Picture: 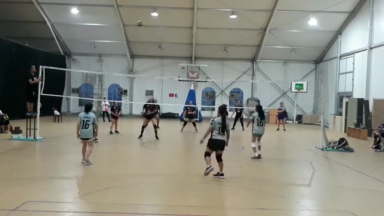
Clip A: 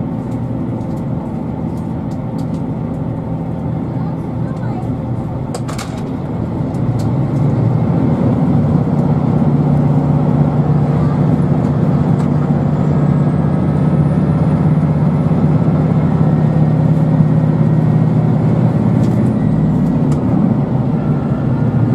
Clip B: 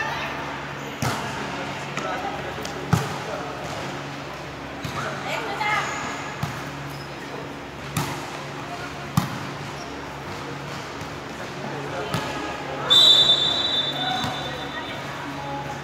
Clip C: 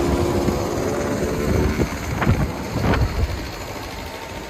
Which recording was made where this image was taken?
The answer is B